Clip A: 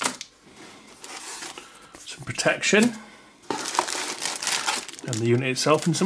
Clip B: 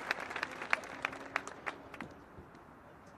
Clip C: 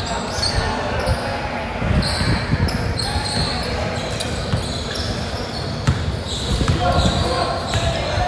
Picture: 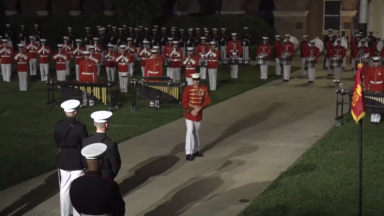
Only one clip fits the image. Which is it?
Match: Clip B